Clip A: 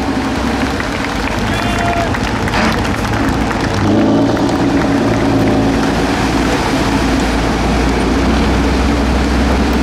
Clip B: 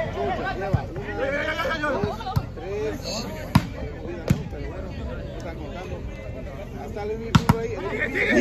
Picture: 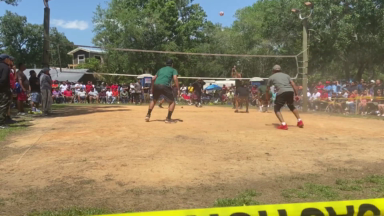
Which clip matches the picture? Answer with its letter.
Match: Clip B